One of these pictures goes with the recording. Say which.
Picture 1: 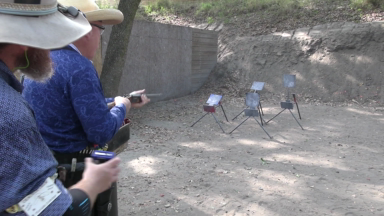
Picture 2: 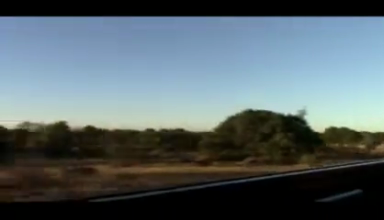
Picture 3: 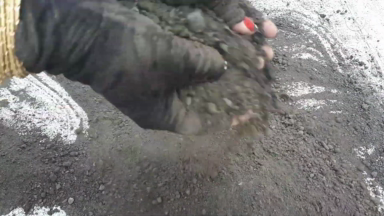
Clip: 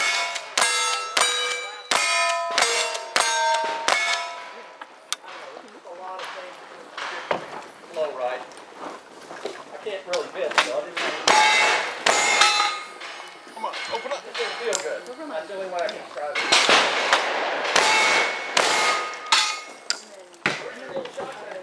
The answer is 1